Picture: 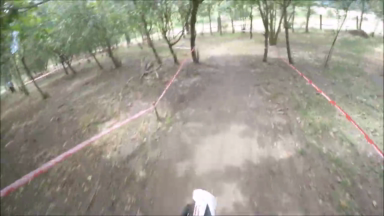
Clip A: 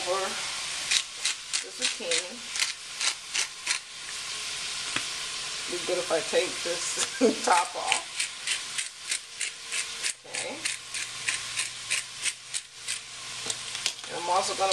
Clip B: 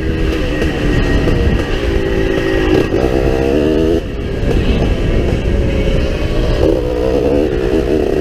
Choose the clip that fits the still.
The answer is B